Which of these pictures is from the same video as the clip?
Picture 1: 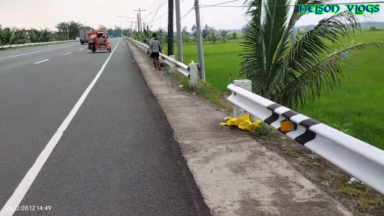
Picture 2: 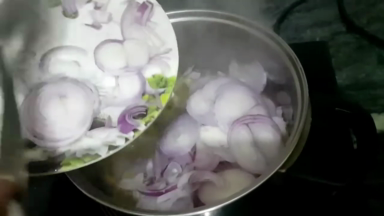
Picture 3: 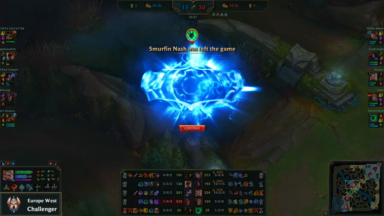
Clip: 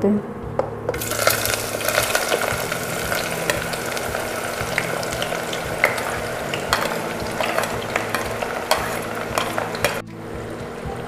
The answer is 2